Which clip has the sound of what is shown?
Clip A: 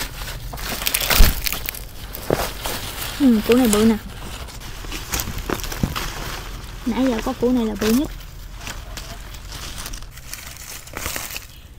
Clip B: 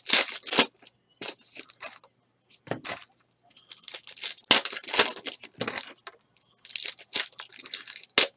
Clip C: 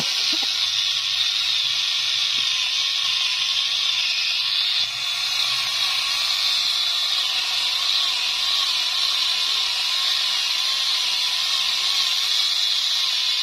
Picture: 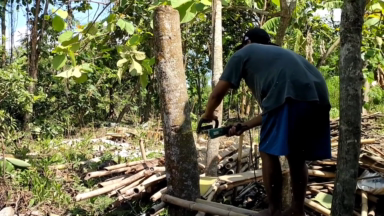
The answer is C